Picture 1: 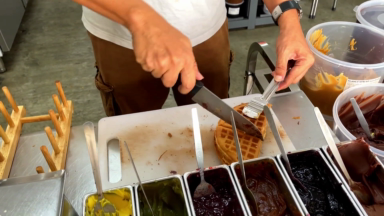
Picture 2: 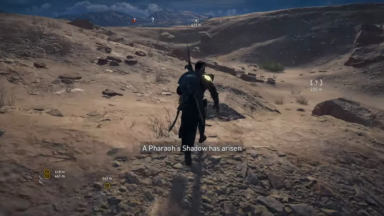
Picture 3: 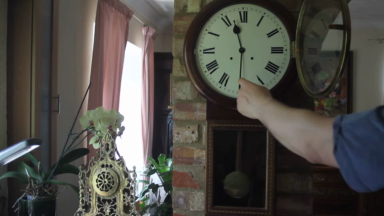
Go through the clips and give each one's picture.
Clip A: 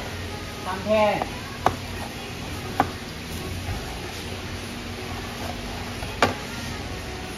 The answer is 1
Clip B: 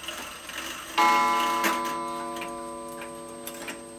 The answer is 3